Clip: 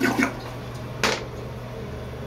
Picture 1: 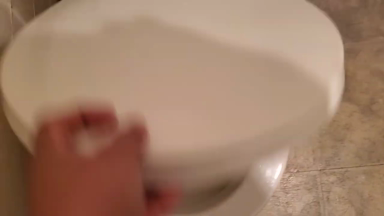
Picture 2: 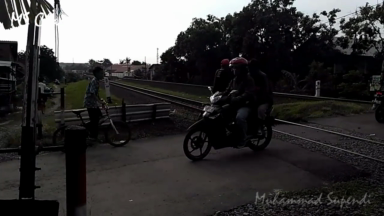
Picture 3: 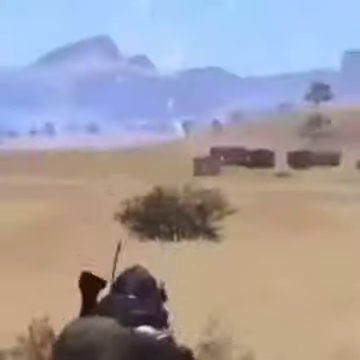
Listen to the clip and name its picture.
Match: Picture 1